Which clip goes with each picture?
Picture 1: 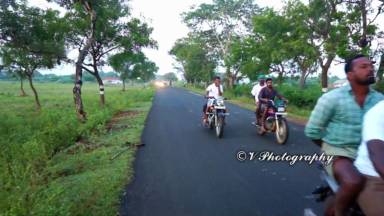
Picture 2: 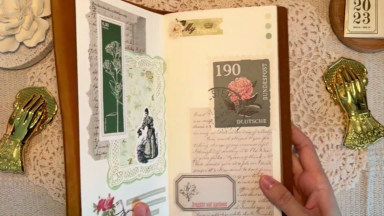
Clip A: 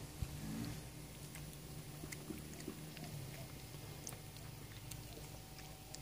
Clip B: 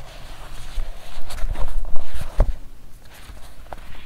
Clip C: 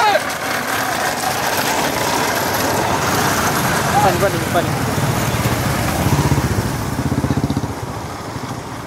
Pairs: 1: C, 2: B